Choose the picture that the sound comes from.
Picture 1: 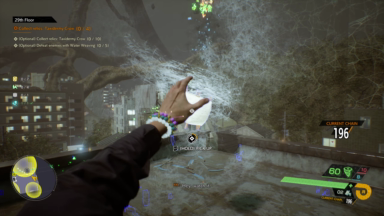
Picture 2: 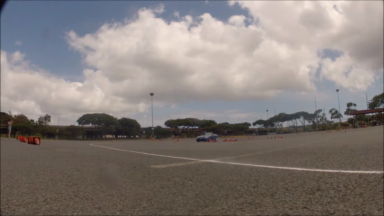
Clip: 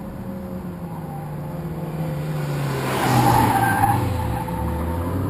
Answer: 2